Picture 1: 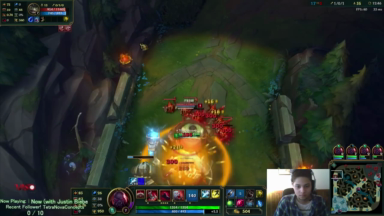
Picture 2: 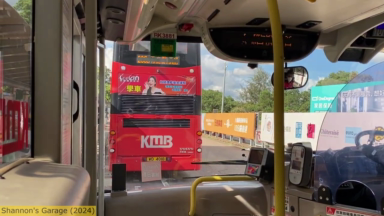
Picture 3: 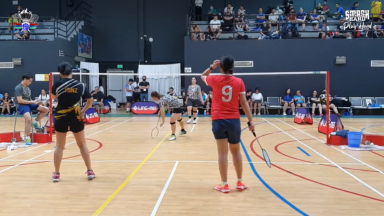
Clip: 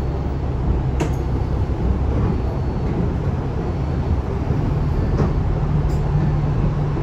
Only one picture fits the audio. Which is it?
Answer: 2